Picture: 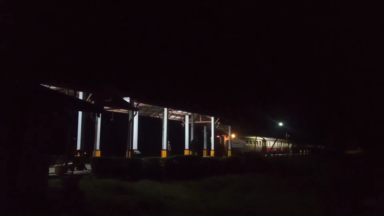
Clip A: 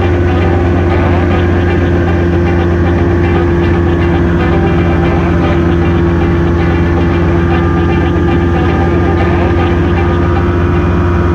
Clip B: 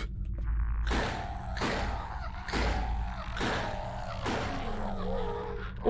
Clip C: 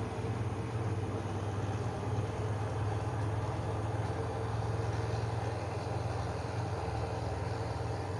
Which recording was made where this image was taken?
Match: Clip C